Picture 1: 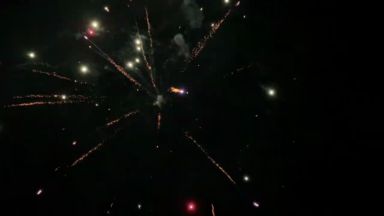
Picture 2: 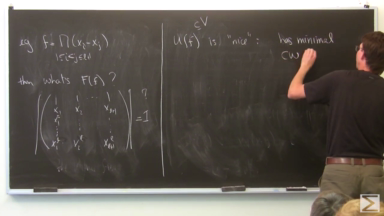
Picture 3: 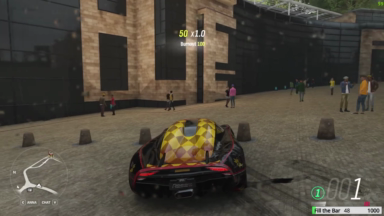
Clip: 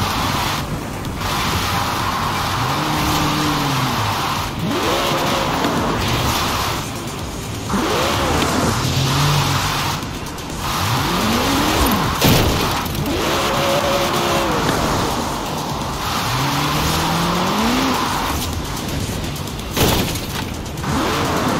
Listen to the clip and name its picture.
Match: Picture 3